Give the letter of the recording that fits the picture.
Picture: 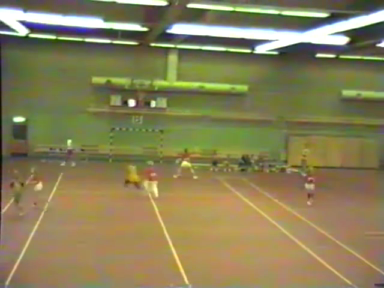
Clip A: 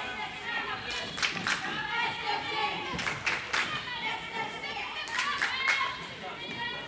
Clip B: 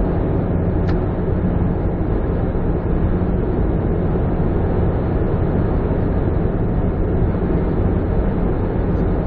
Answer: A